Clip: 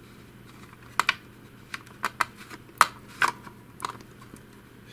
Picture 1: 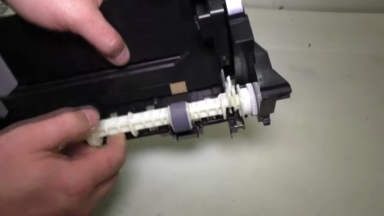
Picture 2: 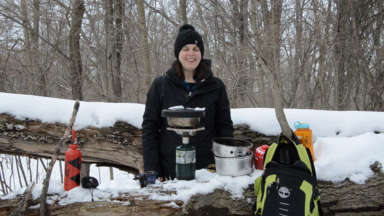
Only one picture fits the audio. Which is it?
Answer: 1